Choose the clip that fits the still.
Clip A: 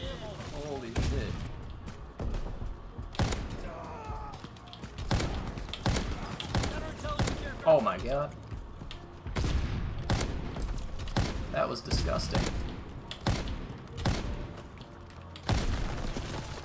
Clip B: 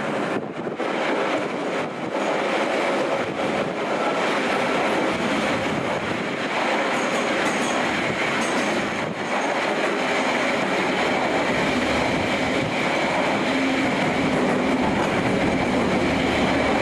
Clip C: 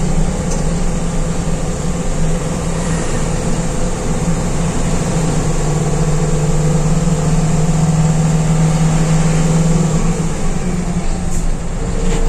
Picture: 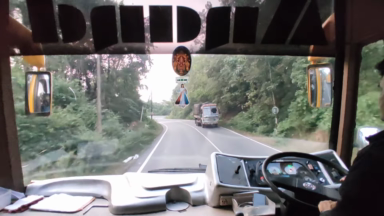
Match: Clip C